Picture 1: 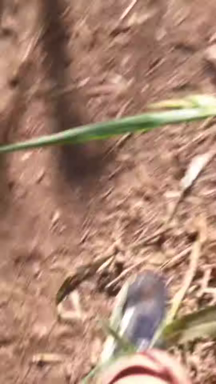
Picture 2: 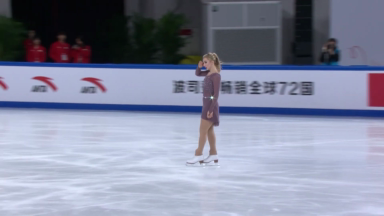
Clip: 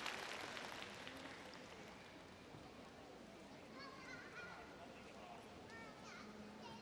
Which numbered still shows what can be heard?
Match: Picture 2